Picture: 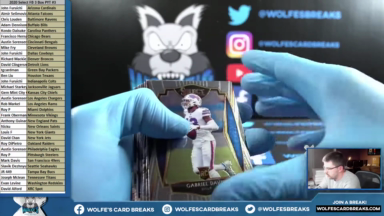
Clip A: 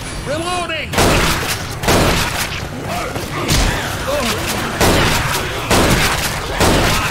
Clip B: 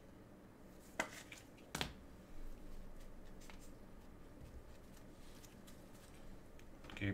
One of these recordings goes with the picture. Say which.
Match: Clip B